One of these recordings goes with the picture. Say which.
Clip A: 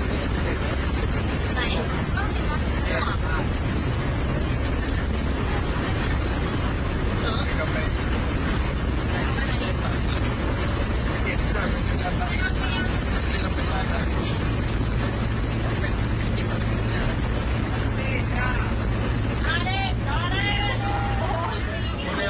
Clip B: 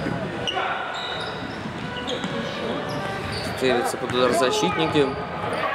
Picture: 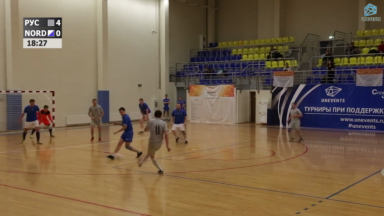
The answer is B